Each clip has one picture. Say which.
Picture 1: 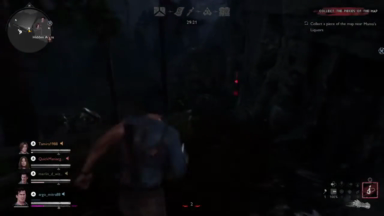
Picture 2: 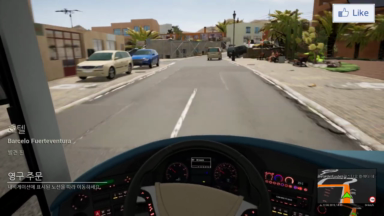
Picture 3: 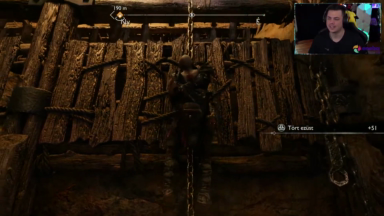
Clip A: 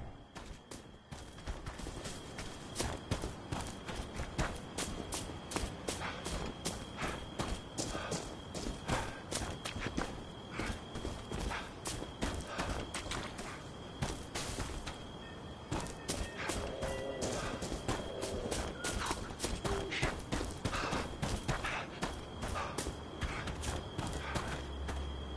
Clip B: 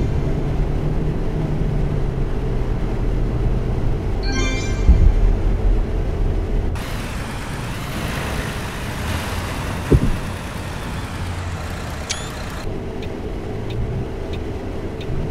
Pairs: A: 1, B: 2